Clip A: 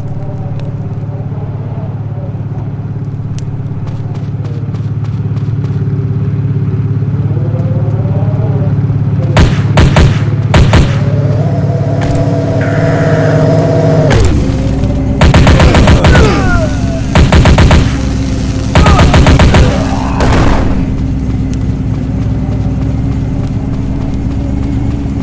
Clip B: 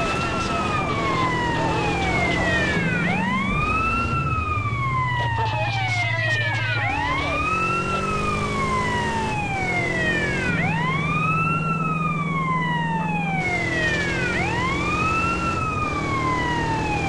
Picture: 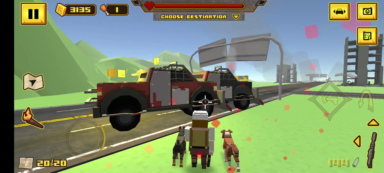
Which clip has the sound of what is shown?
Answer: A